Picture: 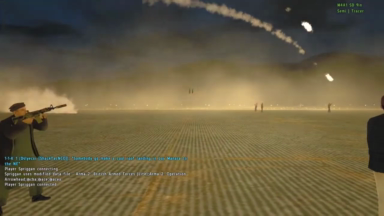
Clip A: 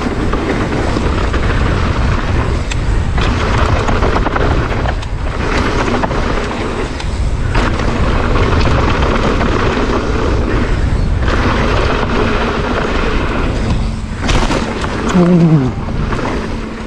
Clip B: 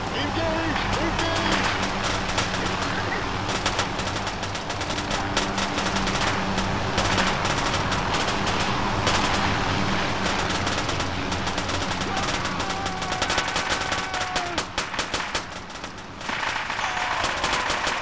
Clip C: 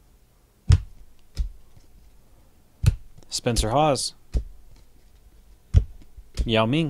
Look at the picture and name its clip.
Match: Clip B